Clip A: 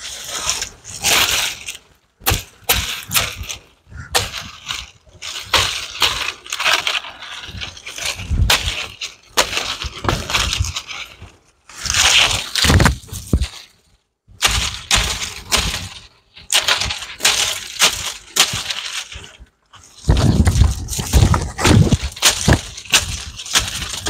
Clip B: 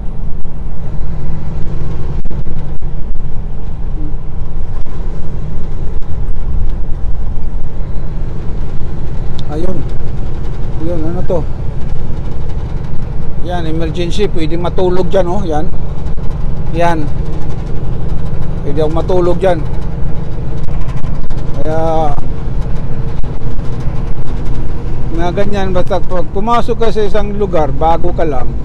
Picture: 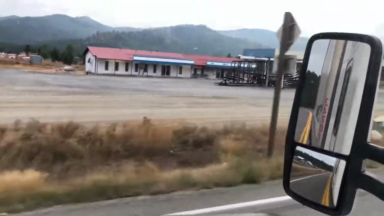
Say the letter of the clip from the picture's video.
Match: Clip B